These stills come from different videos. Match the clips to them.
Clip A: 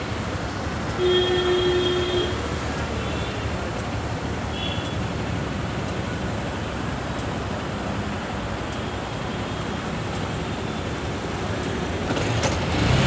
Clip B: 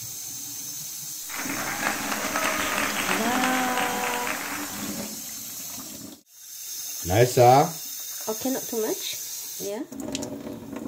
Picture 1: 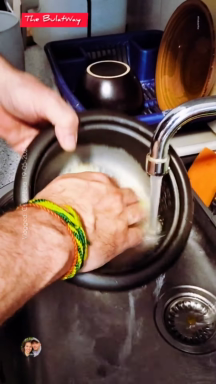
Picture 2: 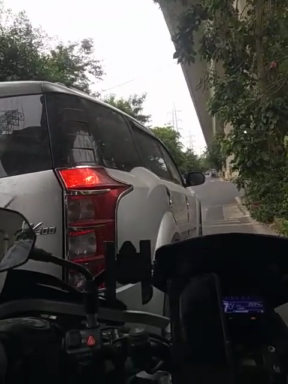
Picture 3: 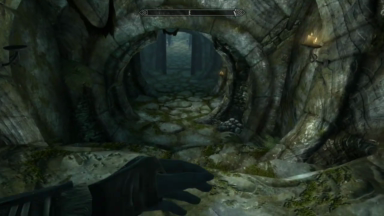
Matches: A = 2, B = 1